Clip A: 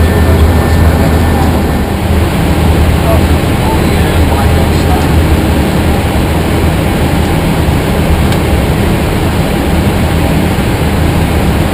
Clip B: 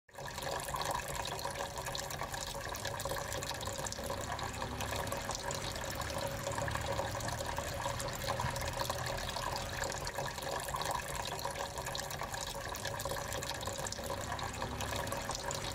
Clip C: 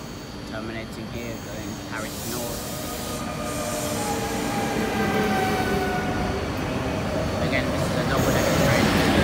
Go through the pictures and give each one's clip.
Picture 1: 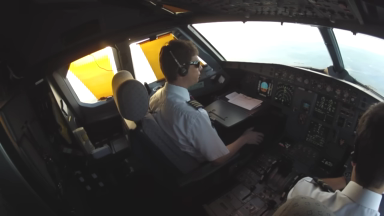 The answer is A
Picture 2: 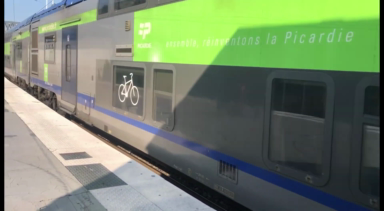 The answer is C